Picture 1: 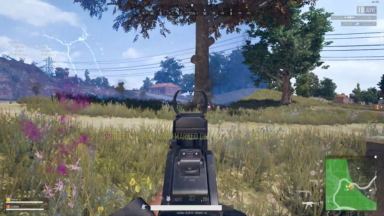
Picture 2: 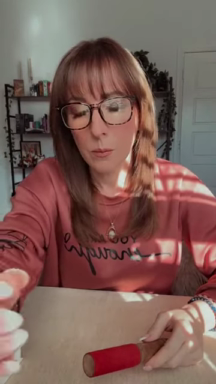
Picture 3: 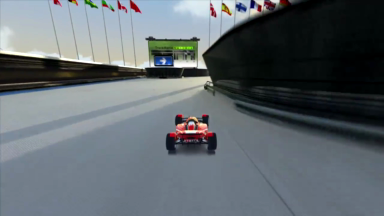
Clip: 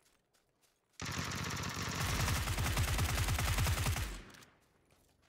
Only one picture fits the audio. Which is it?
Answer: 1